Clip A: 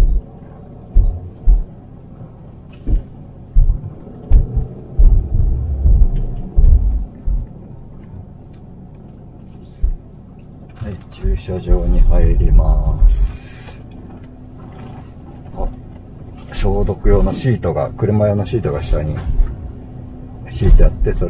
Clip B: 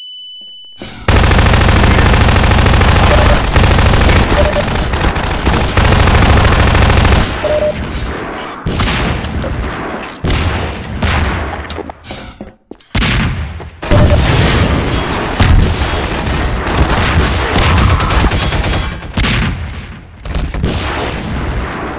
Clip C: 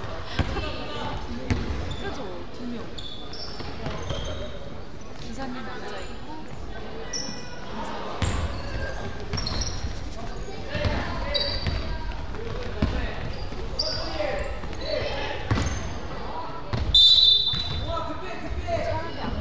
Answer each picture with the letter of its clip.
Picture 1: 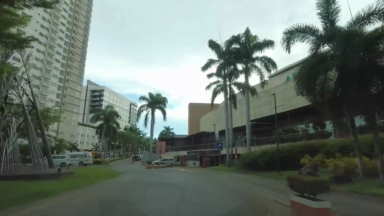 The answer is A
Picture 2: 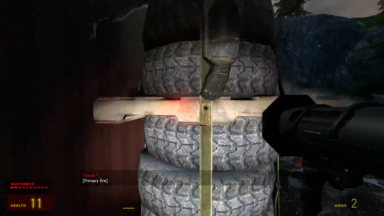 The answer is B